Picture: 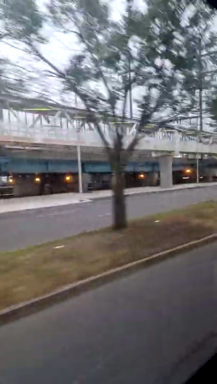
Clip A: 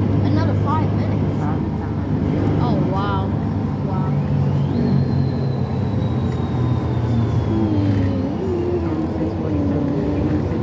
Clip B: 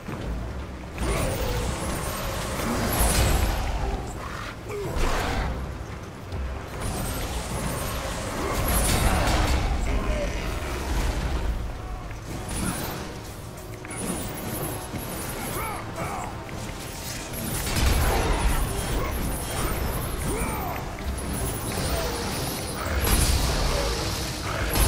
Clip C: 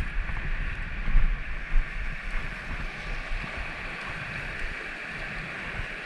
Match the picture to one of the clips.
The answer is A